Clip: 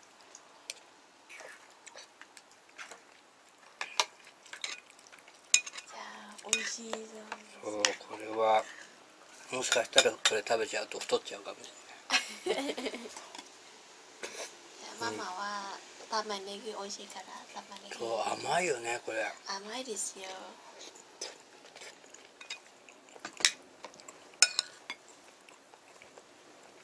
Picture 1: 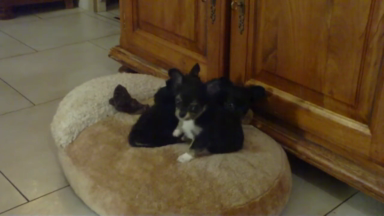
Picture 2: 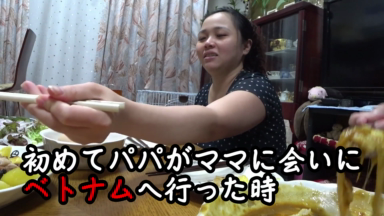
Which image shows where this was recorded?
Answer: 2